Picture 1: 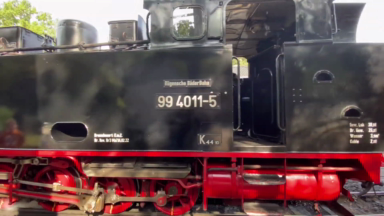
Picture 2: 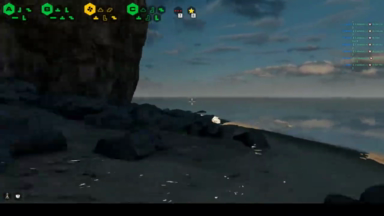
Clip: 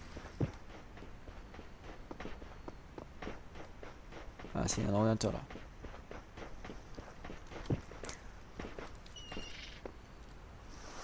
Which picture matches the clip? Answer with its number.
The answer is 2